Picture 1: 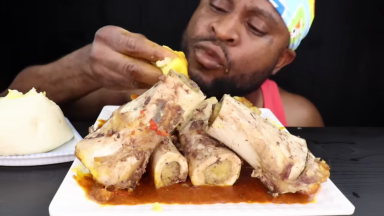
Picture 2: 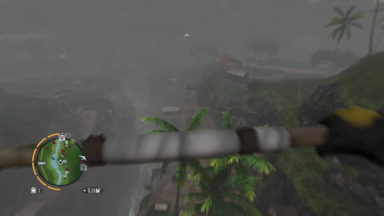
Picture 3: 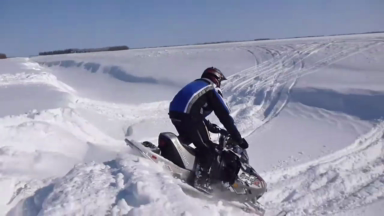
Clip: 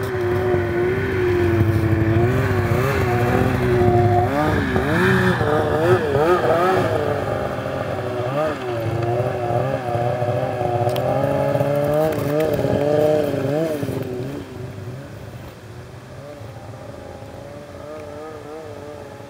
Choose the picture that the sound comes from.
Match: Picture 3